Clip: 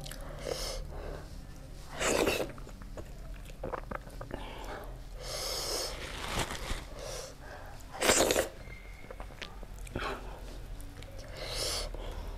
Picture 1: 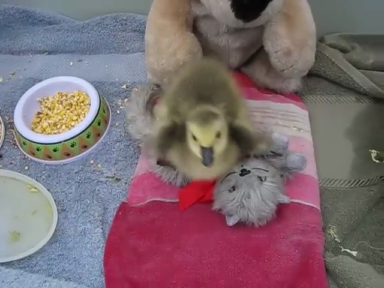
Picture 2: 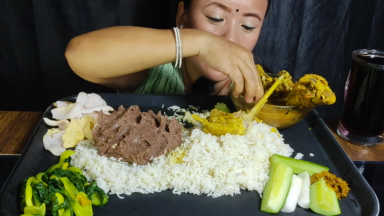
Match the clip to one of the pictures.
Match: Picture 2